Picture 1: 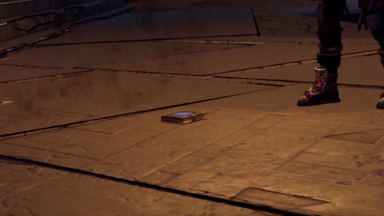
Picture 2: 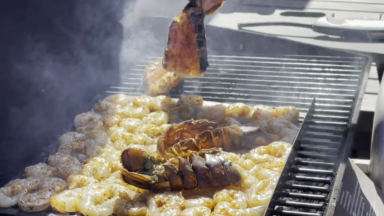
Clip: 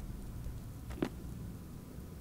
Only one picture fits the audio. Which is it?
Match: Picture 1